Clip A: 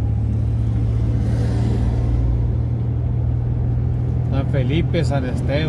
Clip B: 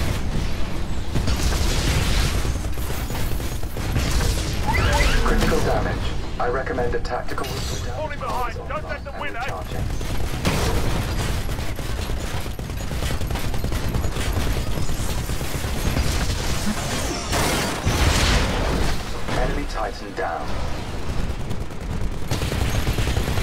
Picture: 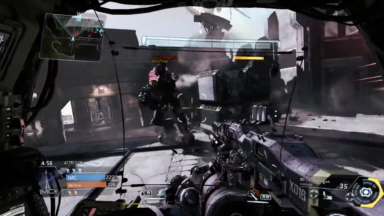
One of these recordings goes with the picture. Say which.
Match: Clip B